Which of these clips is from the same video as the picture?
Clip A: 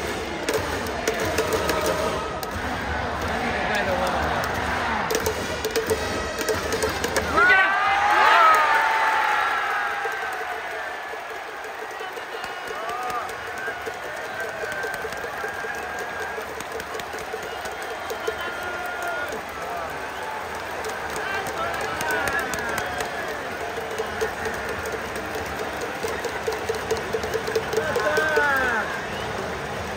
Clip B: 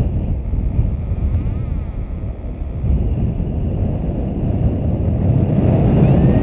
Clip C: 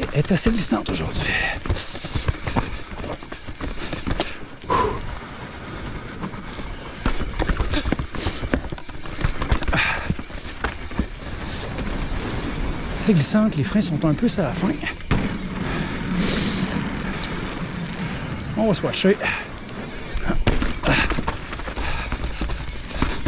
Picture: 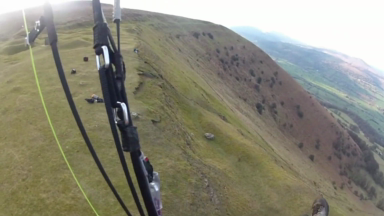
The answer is B